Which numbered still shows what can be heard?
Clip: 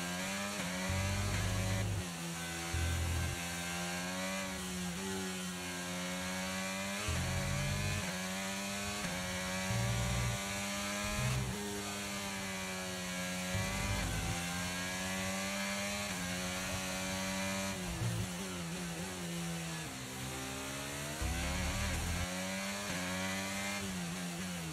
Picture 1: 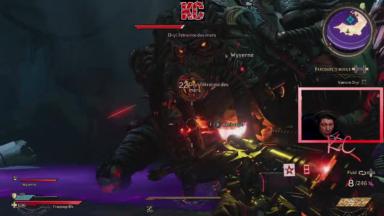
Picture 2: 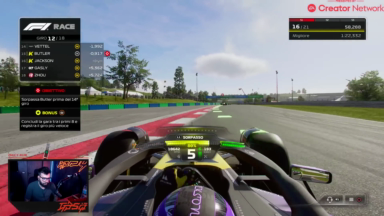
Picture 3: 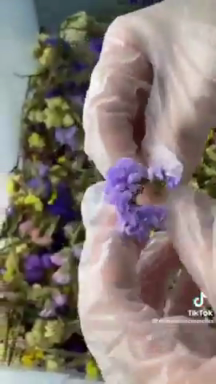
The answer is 2